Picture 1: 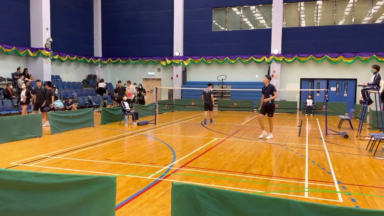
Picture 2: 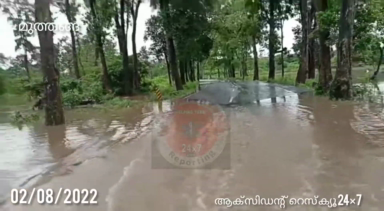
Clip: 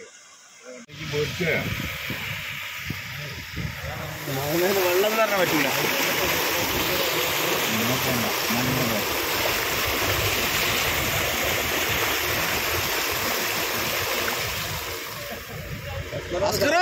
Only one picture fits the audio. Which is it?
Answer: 2